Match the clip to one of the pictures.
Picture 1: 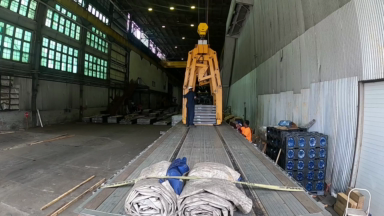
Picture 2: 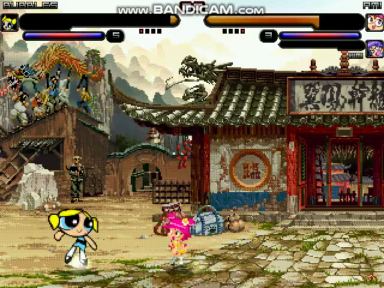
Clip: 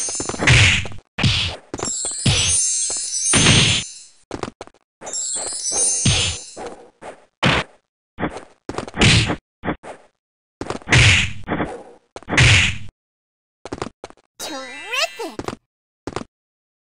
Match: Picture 2